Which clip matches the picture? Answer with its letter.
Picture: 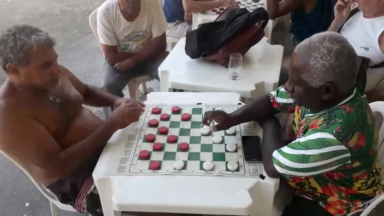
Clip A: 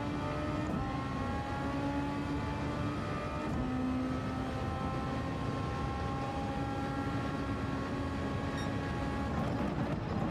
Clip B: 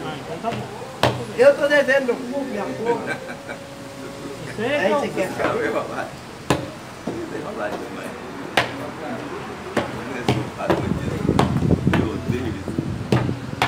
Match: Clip B